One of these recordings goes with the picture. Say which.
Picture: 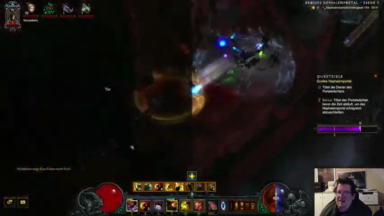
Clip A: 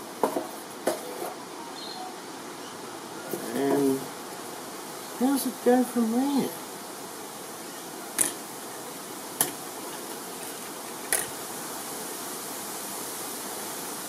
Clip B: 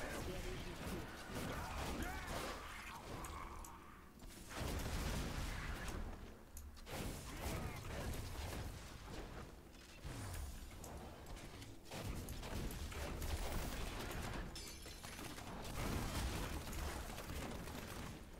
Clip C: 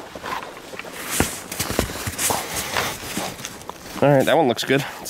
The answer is B